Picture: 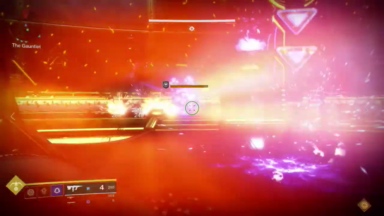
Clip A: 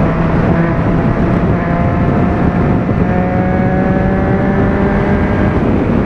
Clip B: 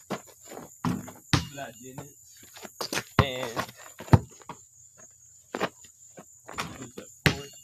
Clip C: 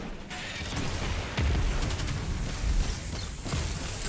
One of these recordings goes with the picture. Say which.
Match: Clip C